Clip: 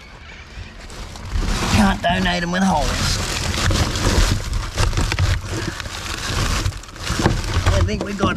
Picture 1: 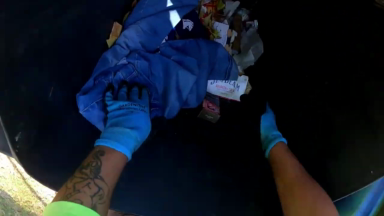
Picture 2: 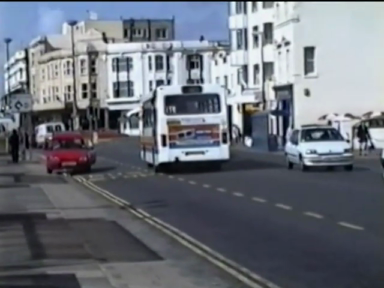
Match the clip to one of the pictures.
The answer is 1